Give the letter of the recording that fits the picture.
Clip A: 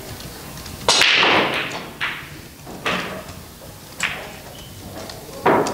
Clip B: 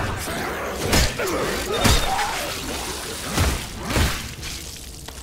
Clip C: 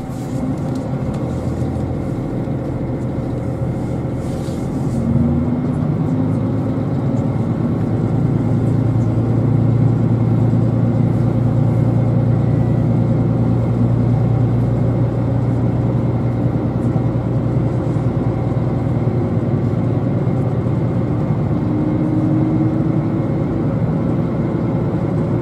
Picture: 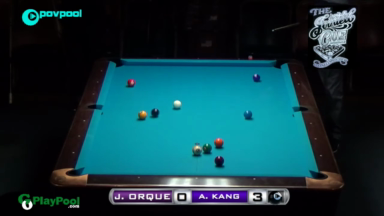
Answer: A